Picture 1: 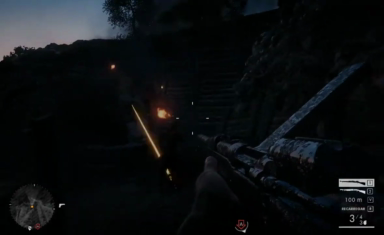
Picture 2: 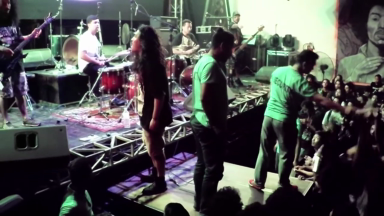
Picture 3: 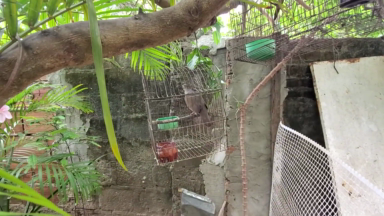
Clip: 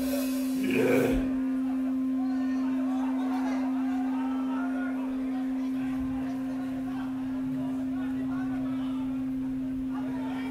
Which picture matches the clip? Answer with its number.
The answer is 2